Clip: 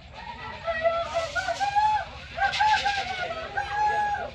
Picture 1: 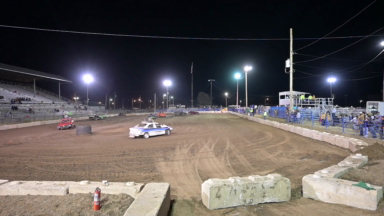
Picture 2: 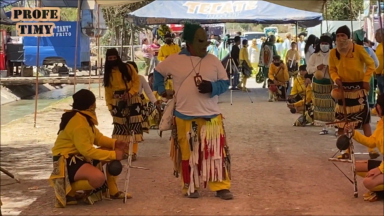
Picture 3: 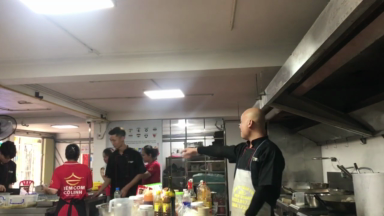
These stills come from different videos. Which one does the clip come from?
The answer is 2